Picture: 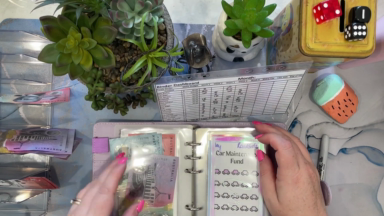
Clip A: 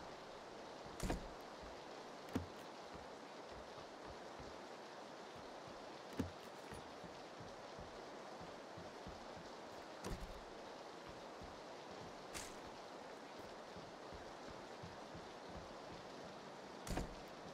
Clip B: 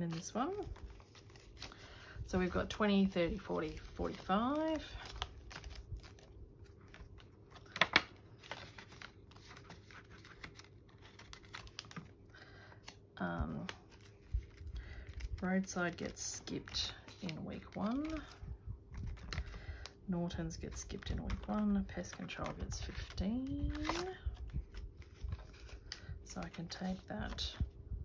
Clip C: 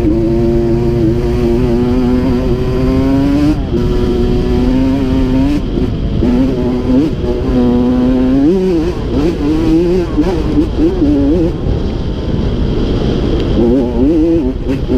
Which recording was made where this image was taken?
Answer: B